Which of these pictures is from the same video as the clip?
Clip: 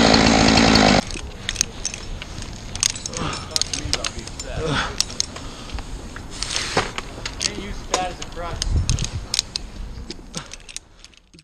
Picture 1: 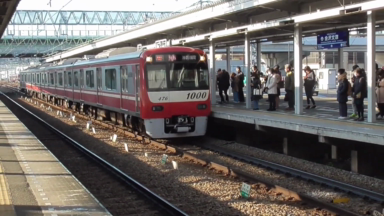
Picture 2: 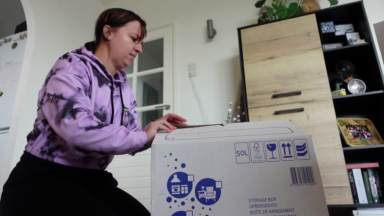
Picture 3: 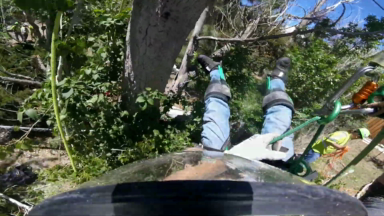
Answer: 3